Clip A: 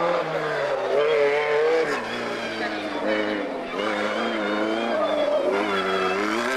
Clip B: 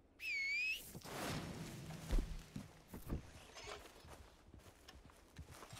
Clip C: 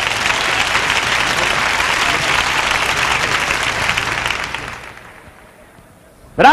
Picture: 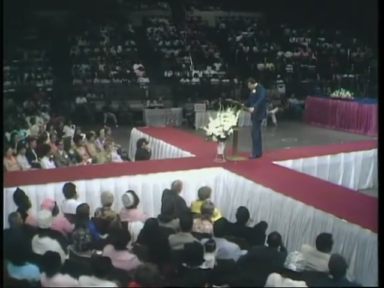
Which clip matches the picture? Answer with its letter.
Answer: C